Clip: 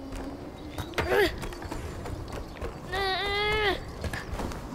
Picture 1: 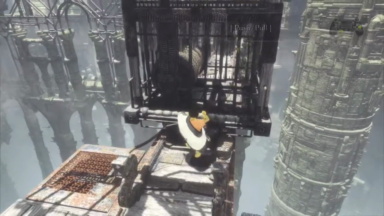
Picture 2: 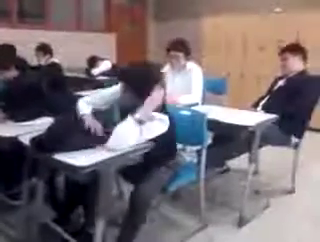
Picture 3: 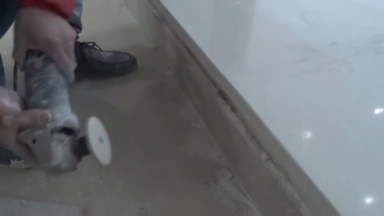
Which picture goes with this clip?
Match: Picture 1